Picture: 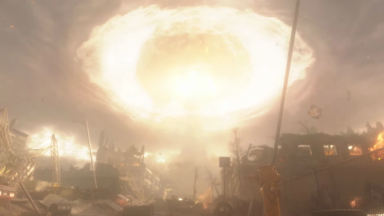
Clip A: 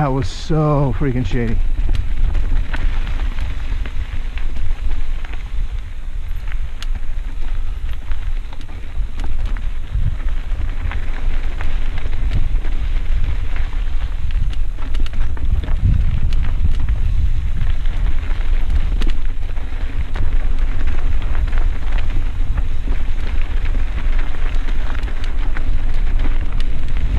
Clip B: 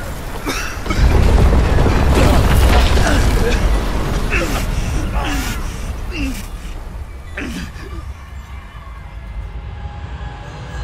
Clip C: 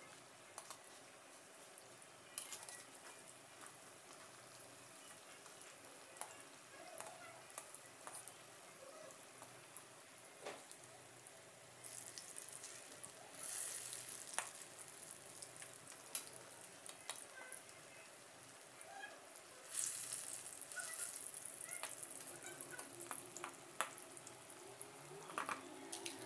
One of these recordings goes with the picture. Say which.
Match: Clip B